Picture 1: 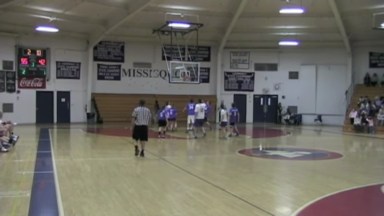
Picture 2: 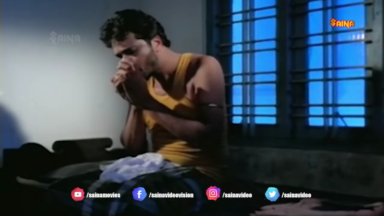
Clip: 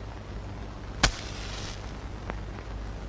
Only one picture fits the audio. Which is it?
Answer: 2